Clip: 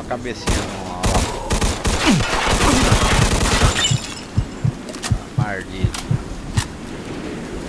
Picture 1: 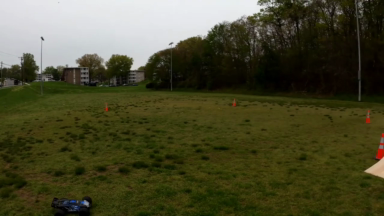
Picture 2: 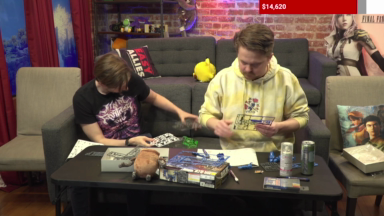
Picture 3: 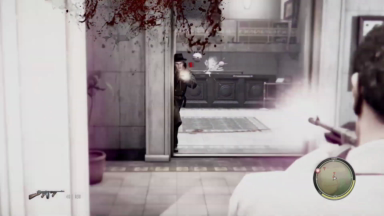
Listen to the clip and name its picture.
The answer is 3